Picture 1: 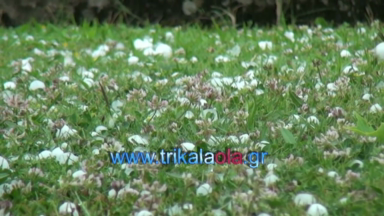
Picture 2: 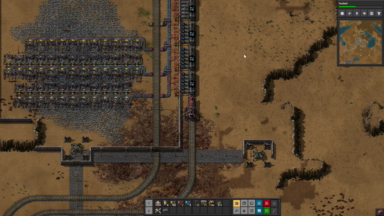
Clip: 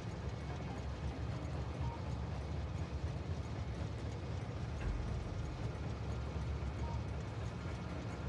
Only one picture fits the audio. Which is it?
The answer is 2